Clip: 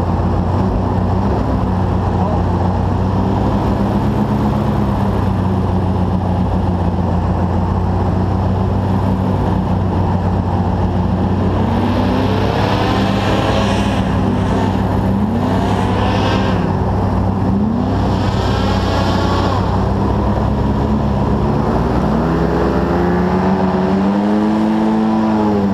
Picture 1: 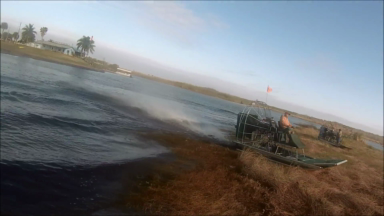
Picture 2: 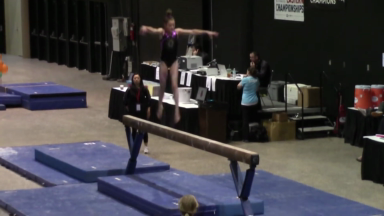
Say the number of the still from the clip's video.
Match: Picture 1